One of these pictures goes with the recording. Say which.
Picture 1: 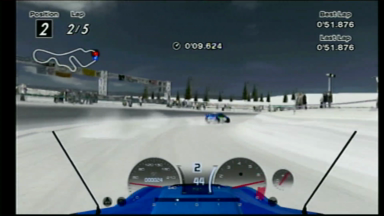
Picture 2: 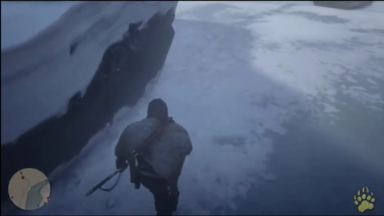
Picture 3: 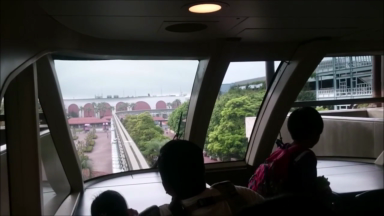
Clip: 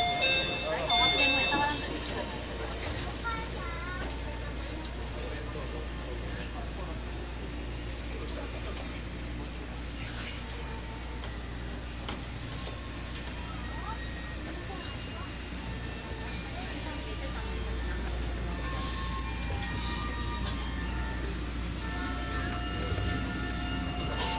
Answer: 3